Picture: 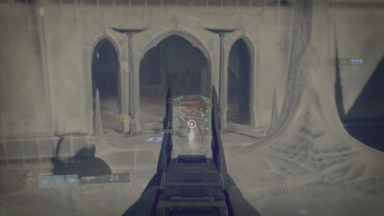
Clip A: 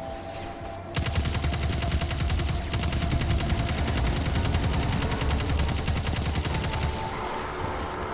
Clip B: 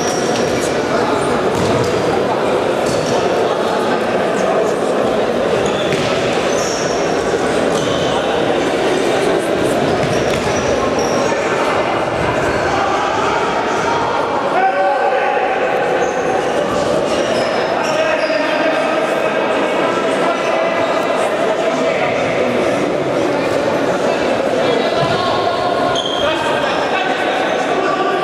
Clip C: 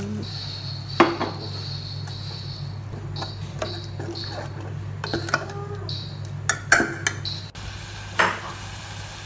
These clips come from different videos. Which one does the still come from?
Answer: A